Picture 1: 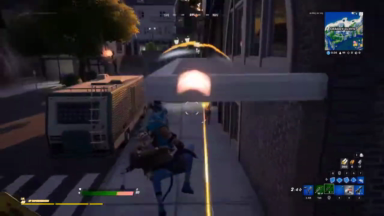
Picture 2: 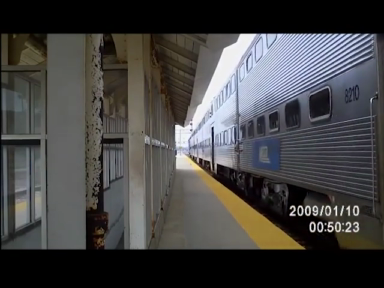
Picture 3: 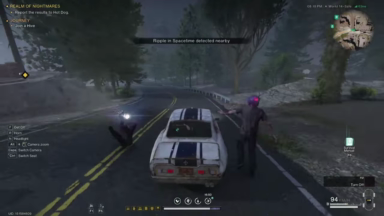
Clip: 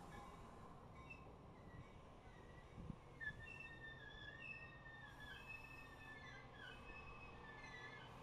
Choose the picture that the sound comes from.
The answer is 2